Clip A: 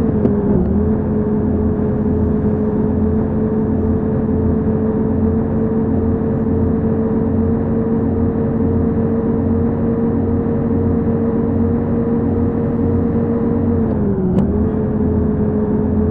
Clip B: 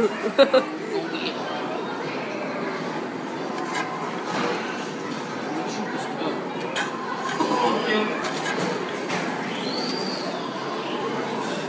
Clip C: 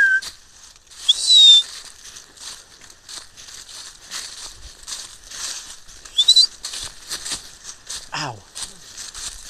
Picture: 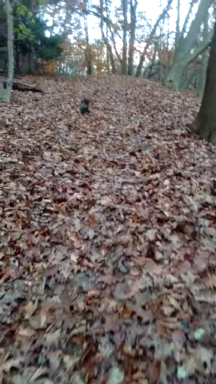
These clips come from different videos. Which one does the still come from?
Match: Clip C